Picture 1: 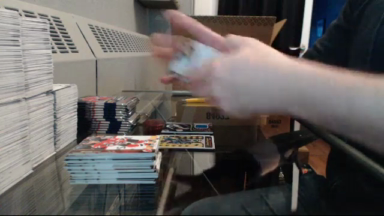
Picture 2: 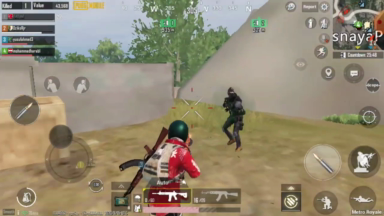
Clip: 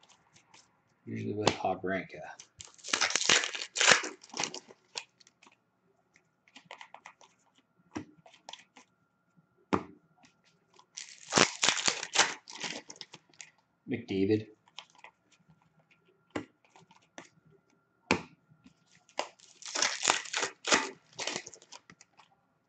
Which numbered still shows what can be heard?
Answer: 1